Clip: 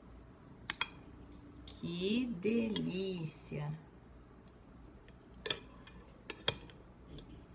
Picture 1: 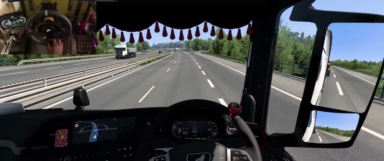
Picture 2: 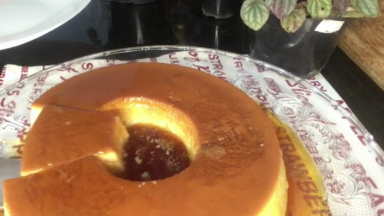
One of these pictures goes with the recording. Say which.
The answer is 2